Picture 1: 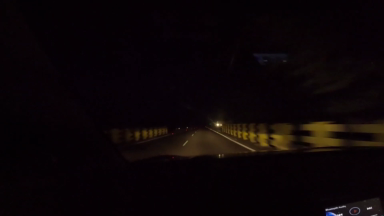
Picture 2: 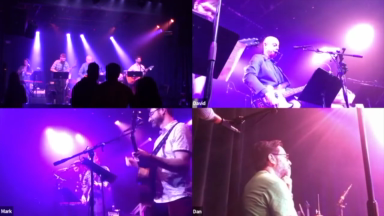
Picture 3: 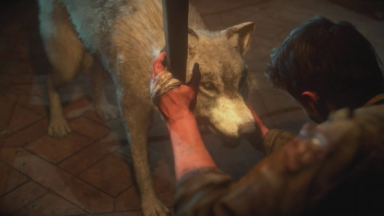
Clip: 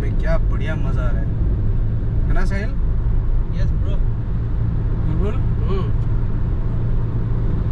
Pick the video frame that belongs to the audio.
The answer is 1